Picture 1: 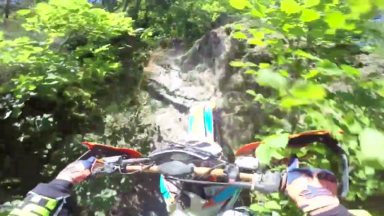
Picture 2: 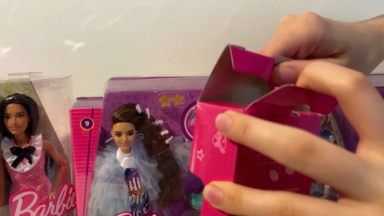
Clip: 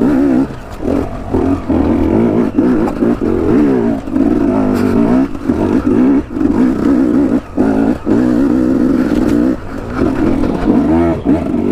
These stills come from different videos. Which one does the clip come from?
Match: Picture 1